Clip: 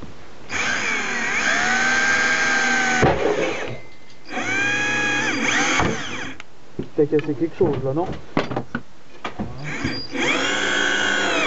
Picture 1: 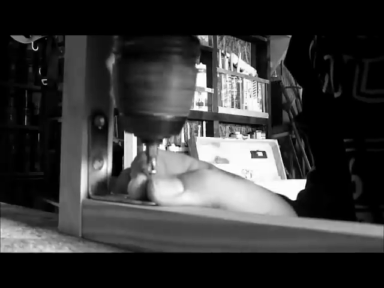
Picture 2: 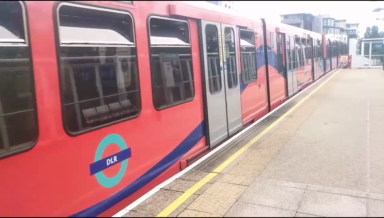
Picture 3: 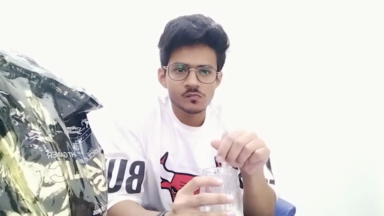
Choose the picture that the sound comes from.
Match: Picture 1